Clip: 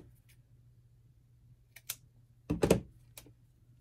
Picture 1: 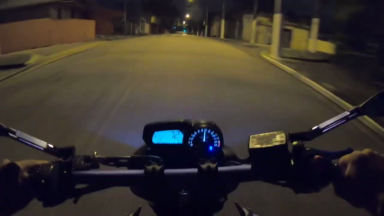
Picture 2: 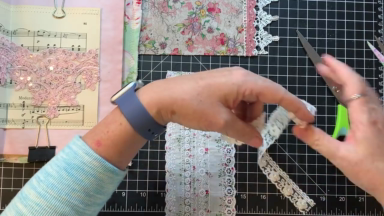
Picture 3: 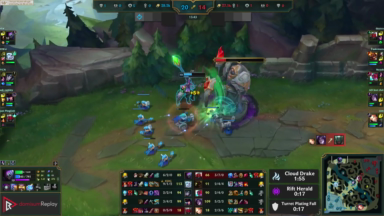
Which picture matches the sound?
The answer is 2